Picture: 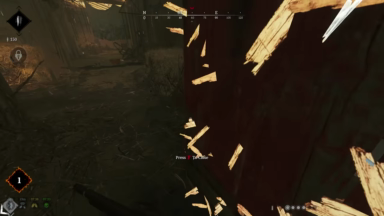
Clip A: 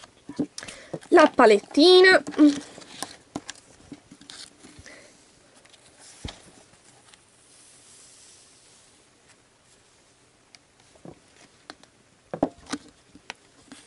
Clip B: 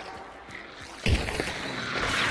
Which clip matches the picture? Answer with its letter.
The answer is B